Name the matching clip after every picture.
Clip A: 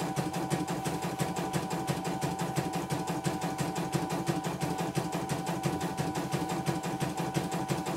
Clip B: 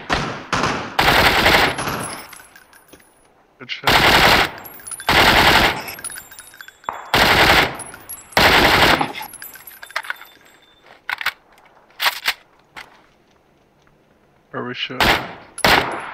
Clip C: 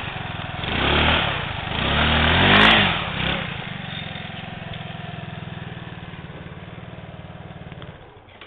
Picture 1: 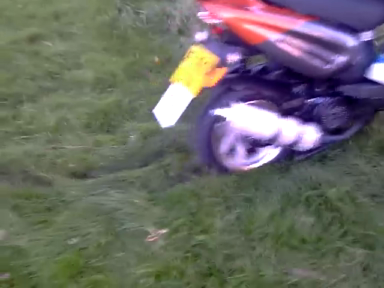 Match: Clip C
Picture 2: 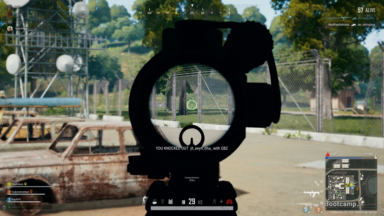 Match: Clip B